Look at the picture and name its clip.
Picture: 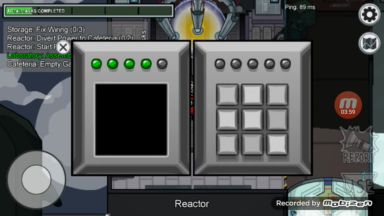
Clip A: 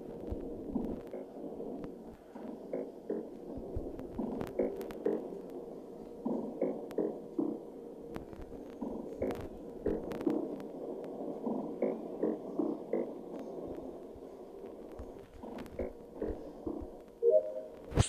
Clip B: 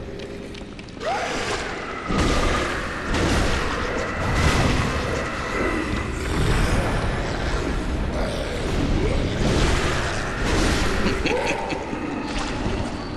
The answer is A